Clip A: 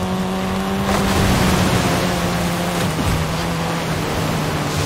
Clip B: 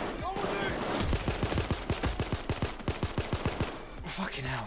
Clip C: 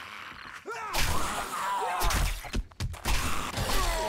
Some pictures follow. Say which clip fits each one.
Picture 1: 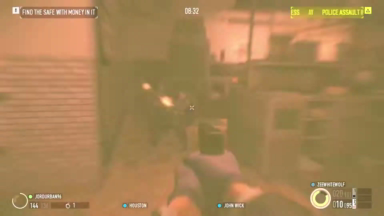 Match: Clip B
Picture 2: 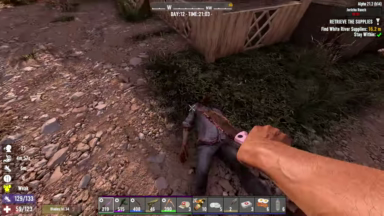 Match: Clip C